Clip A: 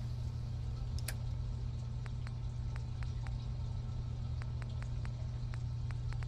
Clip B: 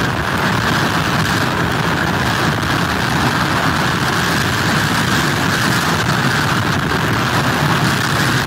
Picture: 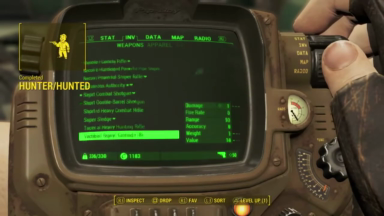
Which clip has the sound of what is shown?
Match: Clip A